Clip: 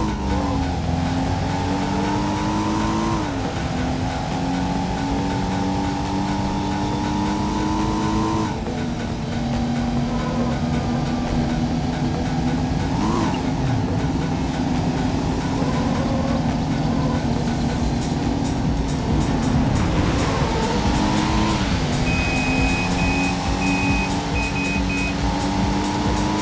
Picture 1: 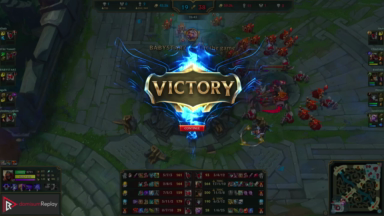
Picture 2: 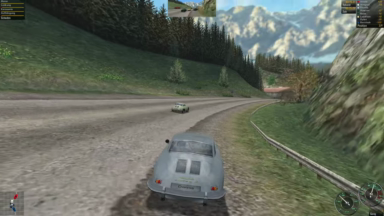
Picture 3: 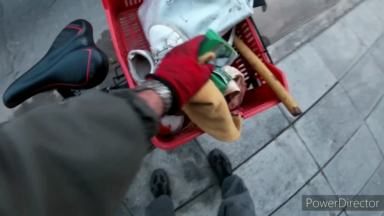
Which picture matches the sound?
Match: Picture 2